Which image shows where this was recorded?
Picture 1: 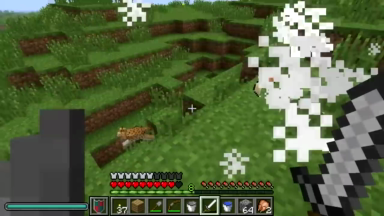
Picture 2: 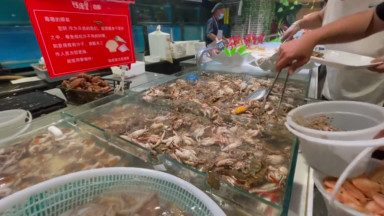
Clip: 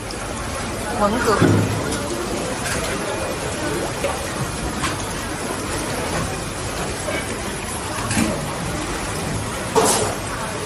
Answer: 2